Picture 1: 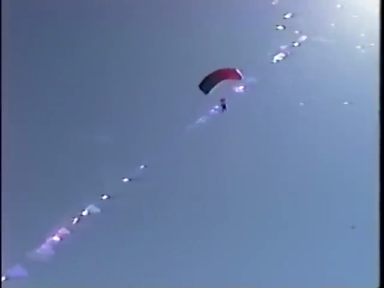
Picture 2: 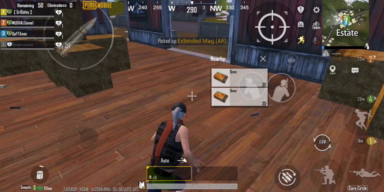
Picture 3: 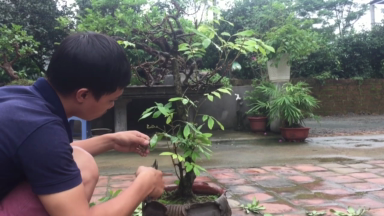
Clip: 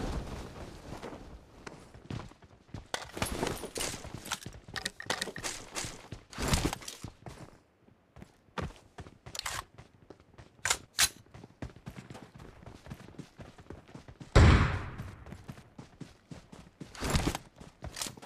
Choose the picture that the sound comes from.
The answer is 2